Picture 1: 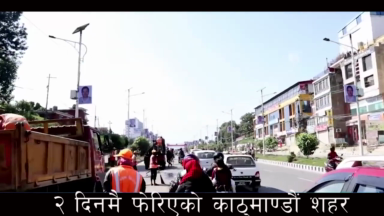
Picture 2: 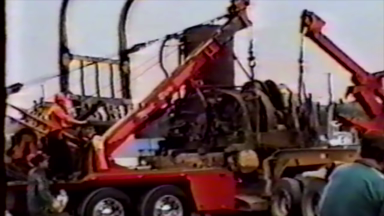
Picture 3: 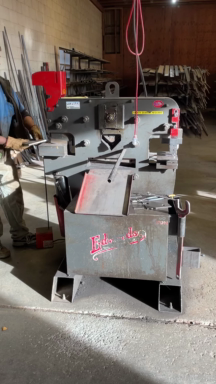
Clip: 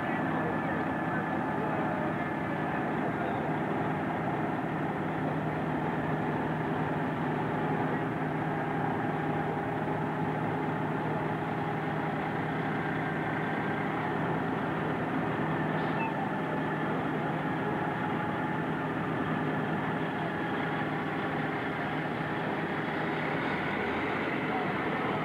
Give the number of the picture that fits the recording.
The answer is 2